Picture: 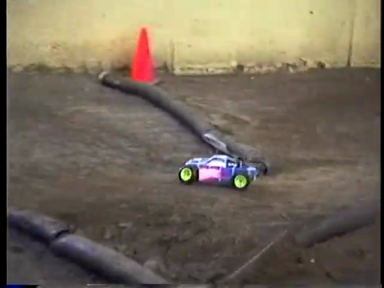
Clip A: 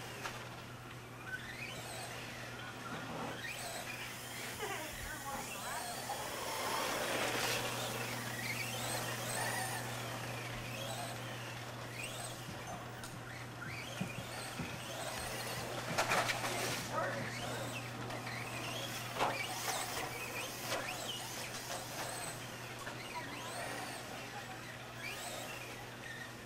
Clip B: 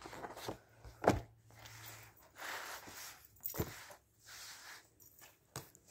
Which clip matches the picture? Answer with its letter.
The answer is A